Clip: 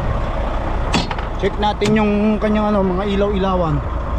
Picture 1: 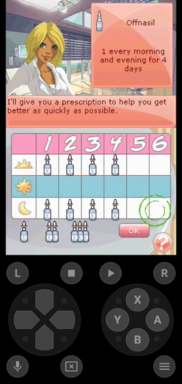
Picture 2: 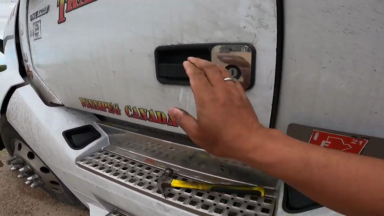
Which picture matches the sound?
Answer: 2